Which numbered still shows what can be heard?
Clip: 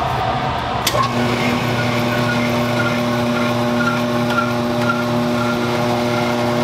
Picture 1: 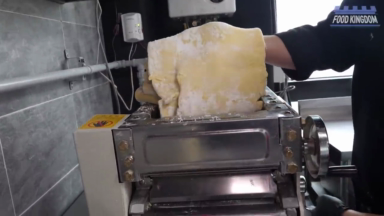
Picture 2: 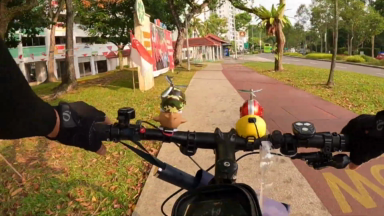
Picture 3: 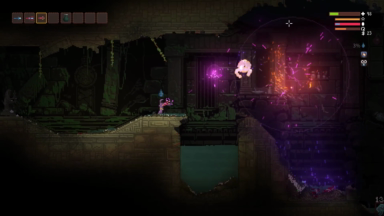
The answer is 1